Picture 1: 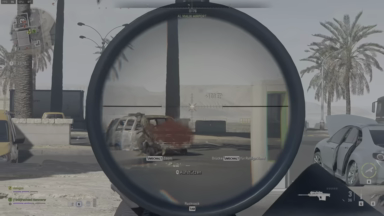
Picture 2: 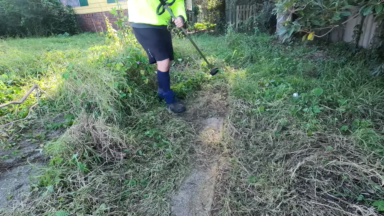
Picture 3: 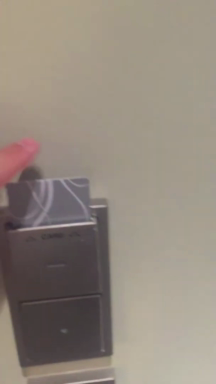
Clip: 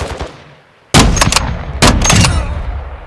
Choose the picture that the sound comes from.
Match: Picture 1